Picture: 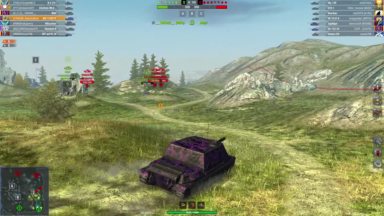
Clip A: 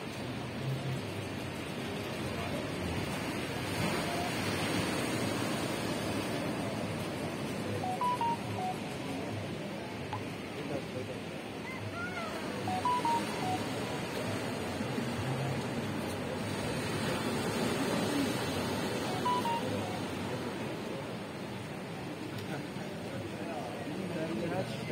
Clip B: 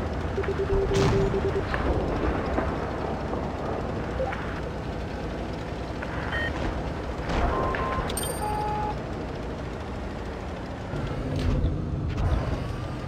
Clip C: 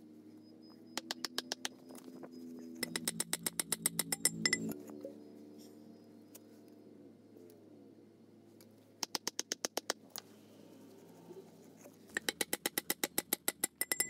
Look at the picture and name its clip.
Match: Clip B